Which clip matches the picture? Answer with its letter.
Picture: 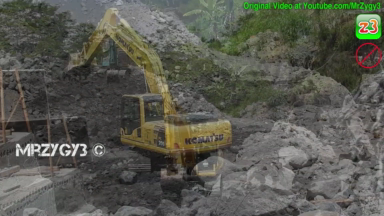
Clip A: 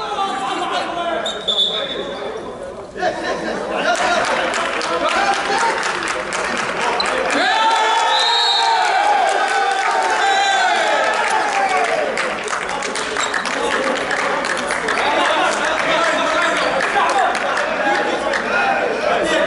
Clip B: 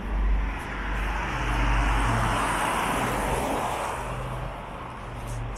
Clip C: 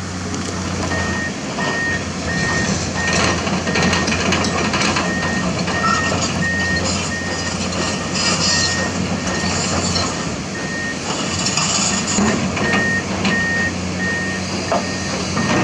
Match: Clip C